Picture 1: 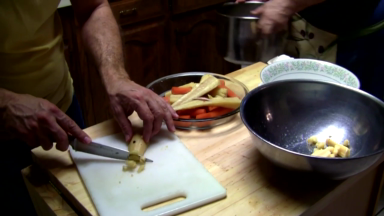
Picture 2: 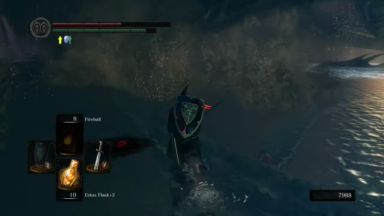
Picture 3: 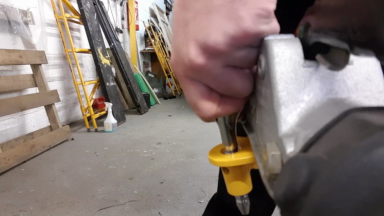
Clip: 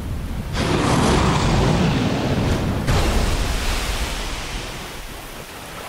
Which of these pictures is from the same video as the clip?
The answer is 2